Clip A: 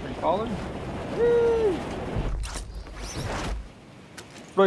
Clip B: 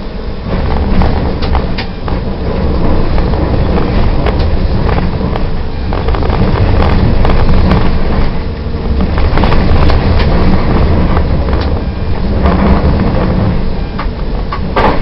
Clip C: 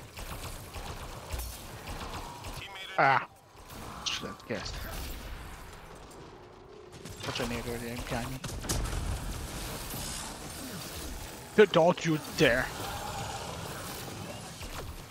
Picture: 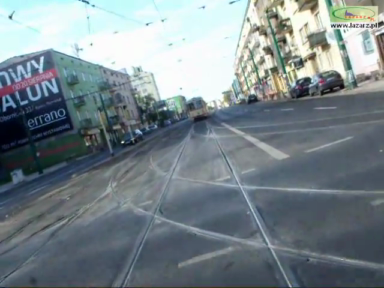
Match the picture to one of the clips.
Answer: B